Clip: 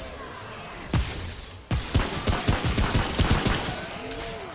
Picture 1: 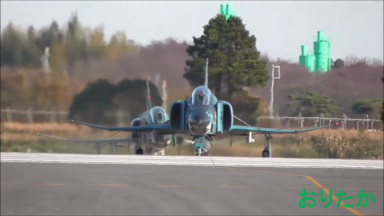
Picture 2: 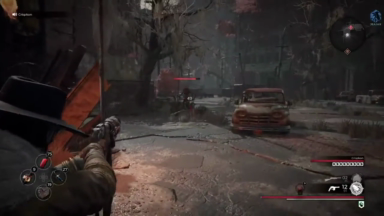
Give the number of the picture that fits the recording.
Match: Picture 2